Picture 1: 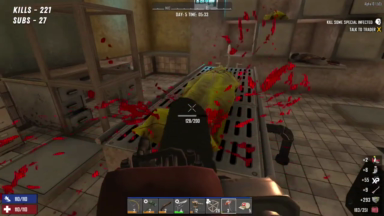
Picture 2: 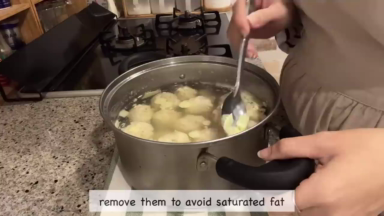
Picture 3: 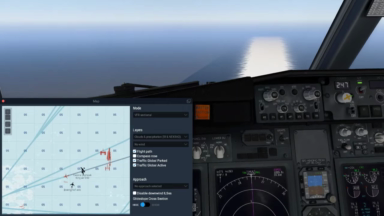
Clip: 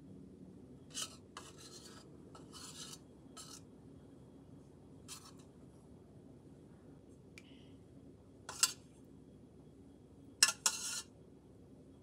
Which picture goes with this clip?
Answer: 2